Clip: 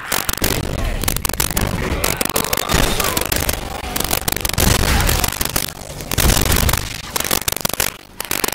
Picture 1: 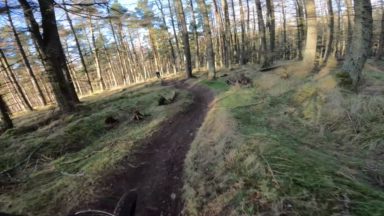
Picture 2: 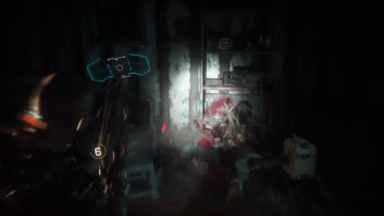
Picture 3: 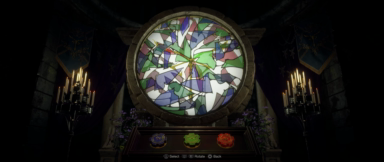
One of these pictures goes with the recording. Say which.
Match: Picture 2